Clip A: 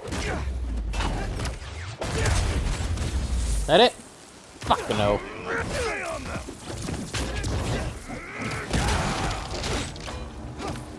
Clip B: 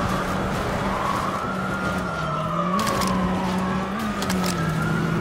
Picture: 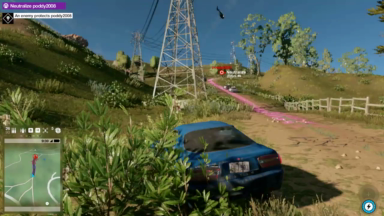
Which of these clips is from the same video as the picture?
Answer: B